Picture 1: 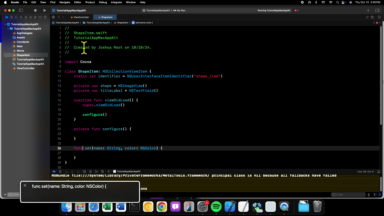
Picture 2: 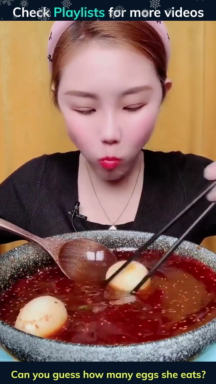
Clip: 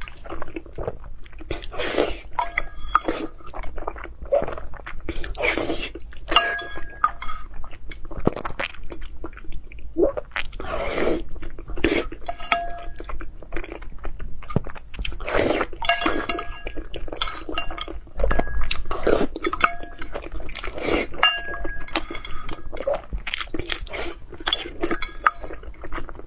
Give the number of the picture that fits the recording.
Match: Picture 2